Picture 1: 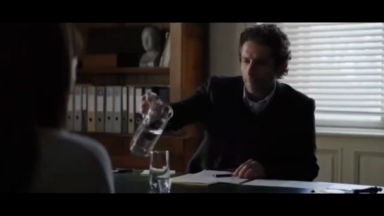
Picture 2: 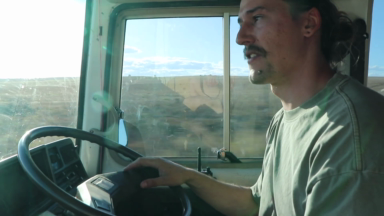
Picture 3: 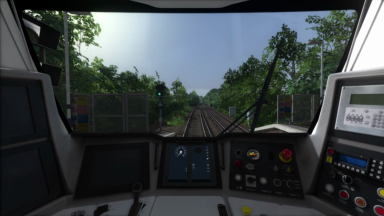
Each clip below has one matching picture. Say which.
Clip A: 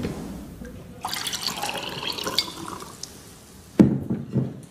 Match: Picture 1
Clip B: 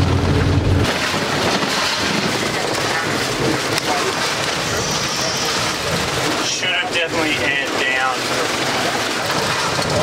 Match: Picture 2